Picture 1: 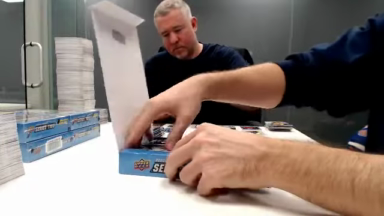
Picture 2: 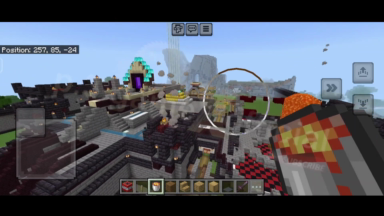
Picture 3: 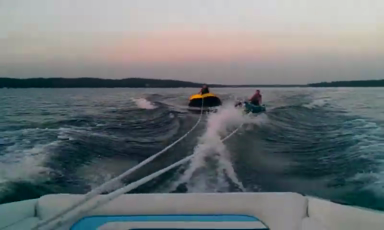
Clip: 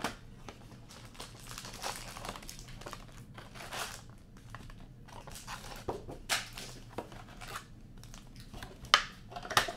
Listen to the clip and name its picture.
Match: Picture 1